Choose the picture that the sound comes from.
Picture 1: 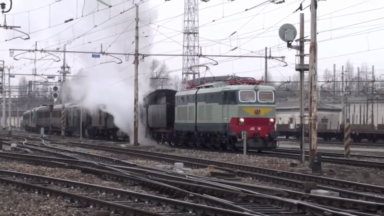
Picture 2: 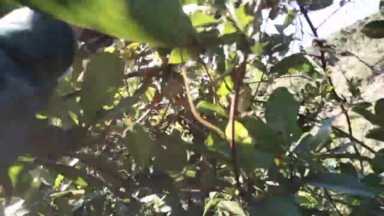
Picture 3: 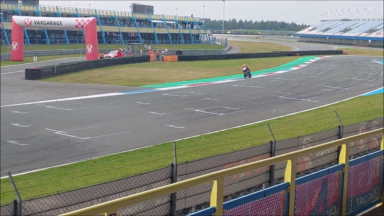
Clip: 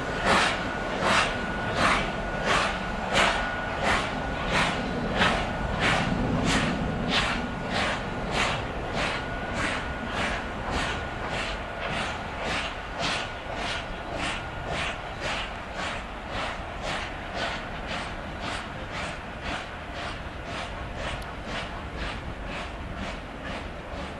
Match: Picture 1